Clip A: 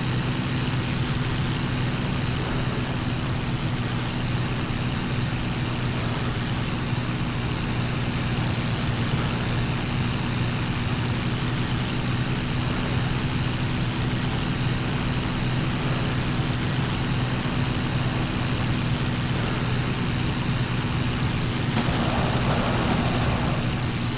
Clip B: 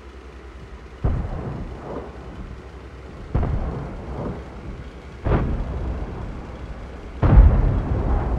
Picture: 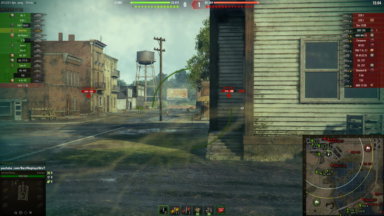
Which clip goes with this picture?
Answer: B